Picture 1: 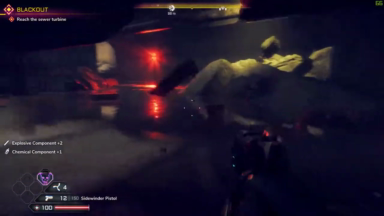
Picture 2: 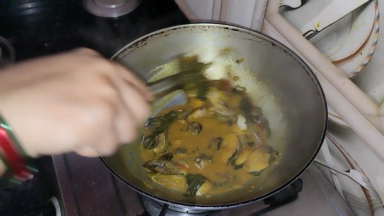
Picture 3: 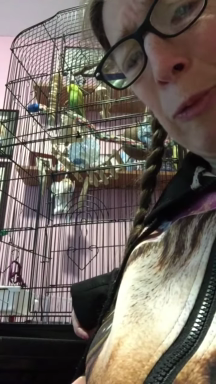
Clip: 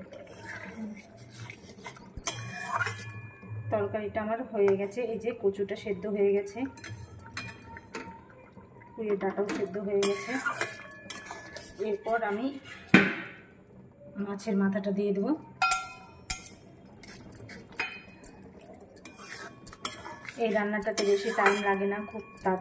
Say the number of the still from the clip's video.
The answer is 2